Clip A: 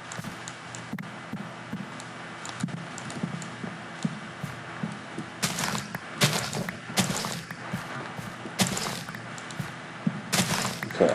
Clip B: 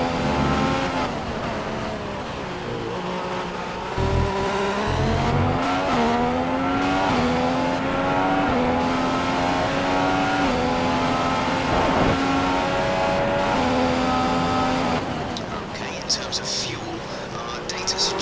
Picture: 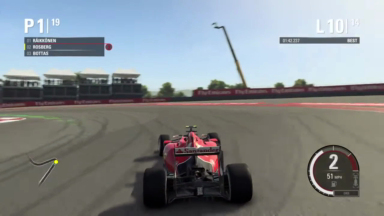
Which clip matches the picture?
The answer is B